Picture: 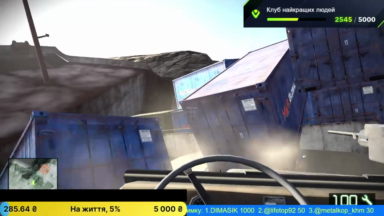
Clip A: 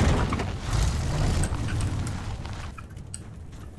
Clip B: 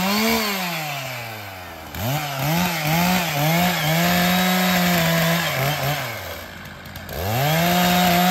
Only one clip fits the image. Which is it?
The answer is A